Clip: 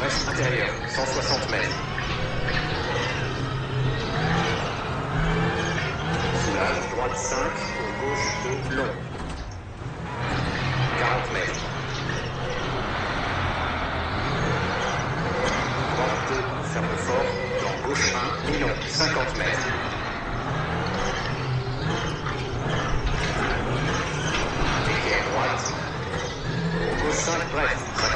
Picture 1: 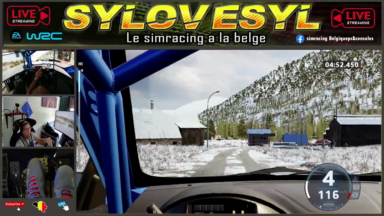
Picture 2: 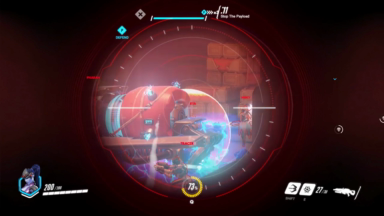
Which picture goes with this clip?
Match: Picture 1